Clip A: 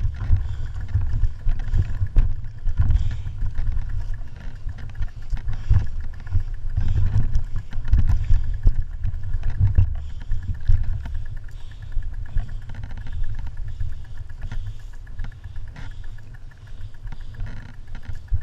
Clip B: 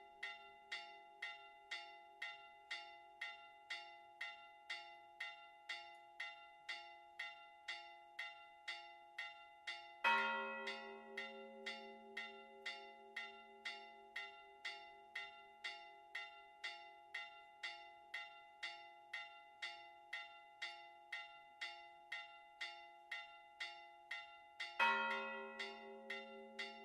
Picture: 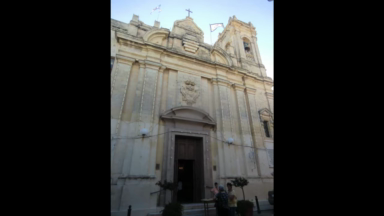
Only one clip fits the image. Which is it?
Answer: B